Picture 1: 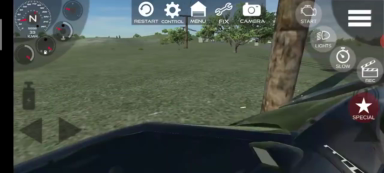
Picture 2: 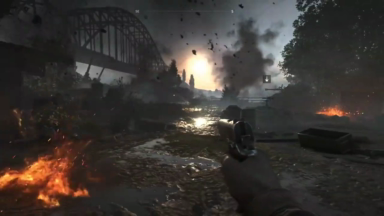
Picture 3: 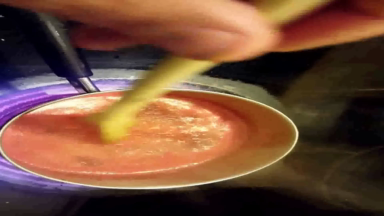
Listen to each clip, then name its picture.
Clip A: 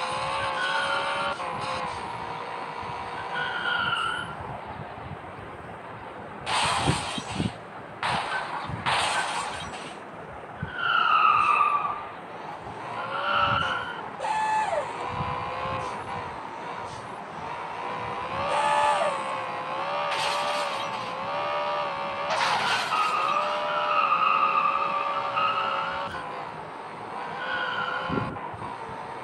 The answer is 1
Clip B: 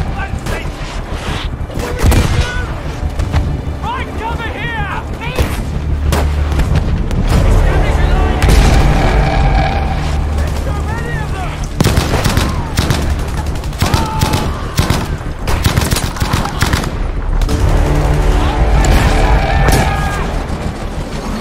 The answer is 2